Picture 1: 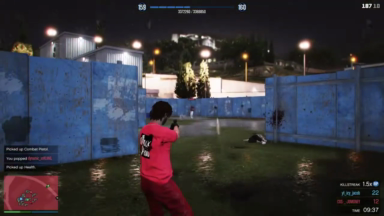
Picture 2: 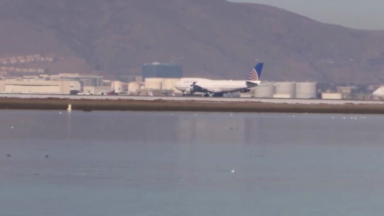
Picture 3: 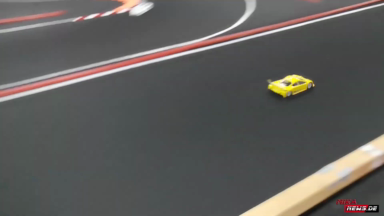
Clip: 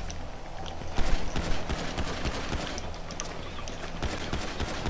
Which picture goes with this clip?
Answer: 1